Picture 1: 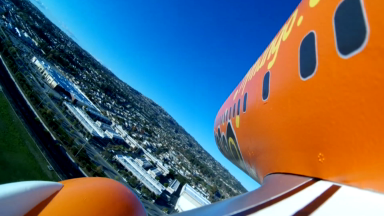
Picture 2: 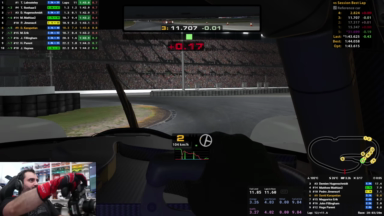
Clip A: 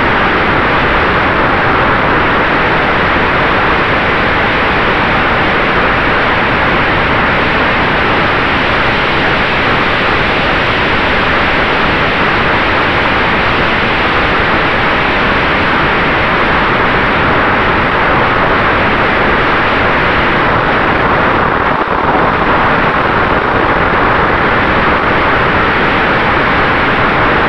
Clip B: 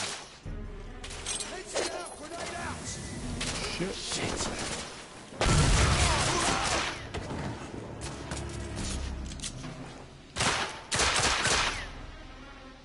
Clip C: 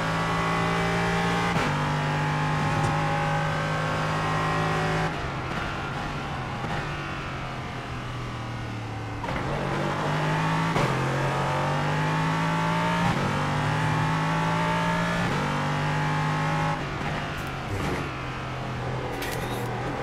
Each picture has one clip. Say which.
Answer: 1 A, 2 C